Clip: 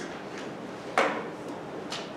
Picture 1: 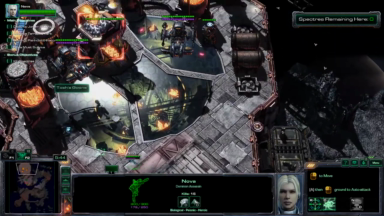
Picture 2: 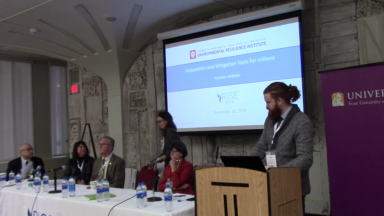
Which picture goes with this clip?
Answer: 2